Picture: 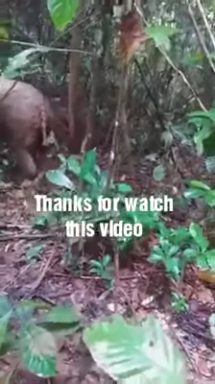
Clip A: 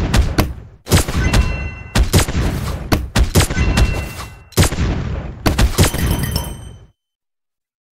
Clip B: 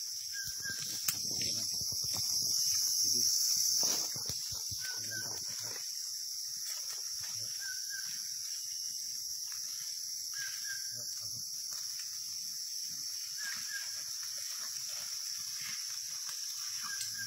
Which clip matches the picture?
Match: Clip B